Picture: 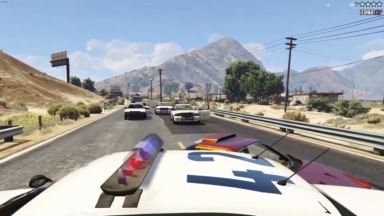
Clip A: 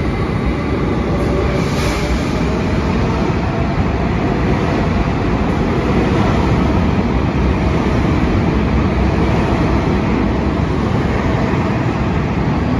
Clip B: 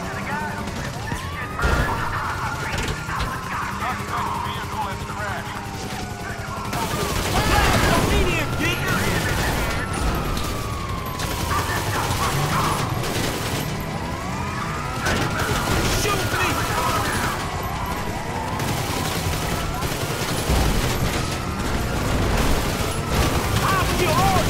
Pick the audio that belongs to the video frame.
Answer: B